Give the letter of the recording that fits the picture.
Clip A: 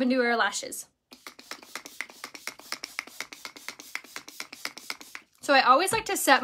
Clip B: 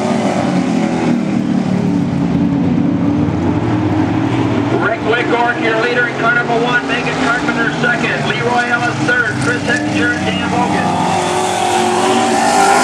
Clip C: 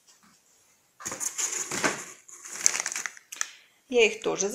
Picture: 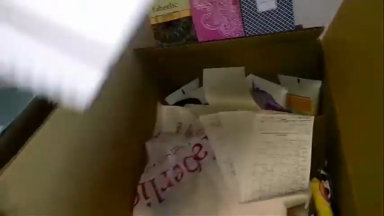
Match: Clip C